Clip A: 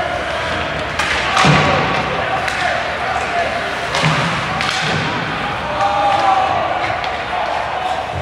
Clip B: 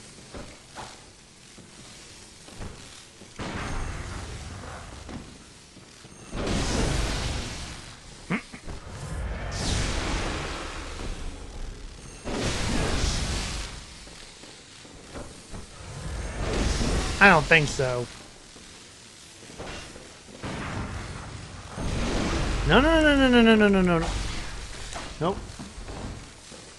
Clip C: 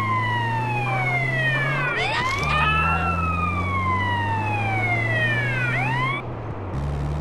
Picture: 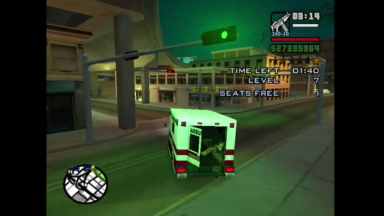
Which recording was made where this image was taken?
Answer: C